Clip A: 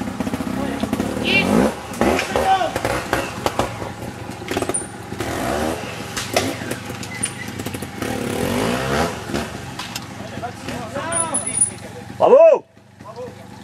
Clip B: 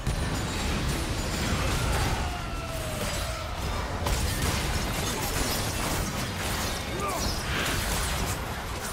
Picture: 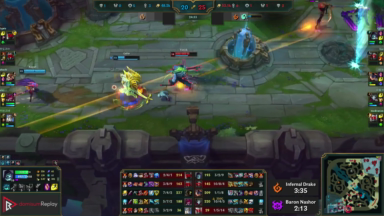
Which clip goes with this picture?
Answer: B